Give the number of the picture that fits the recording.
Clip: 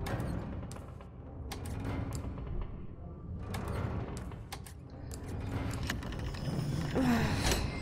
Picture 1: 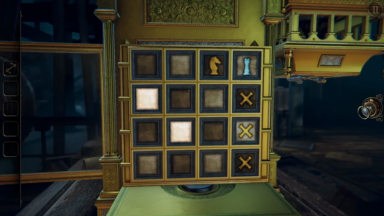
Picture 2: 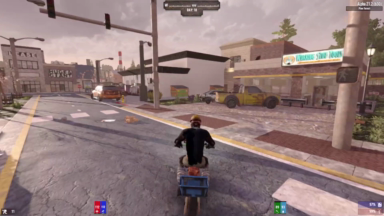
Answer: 1